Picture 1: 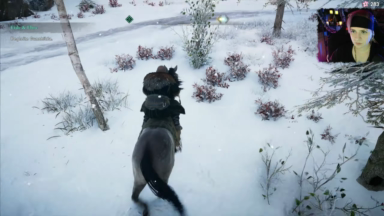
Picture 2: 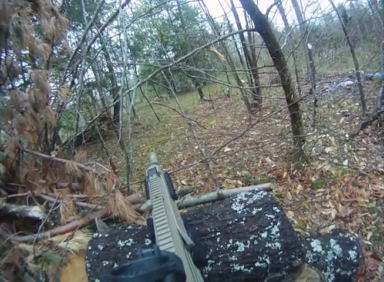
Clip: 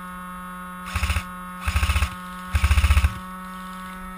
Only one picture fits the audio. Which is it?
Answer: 2